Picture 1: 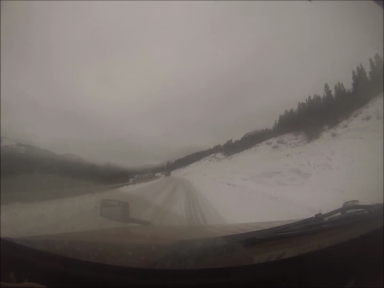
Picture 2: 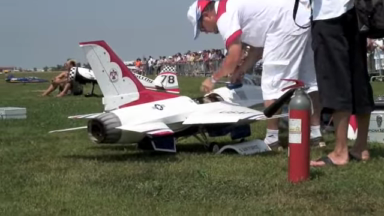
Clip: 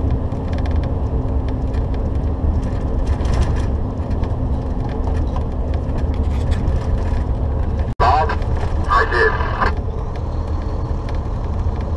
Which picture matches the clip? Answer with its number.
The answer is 1